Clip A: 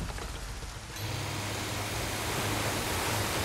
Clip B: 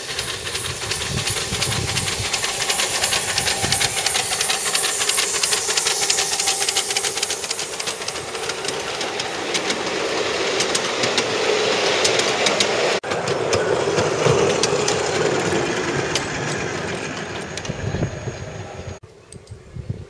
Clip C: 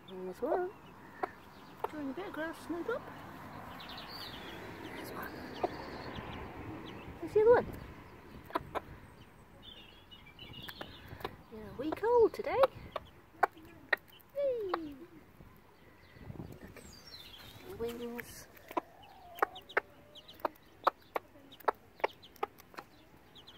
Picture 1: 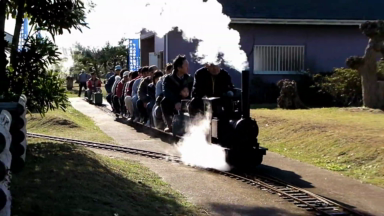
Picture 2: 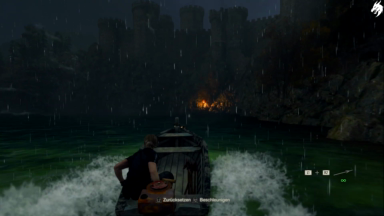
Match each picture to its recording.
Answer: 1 B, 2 A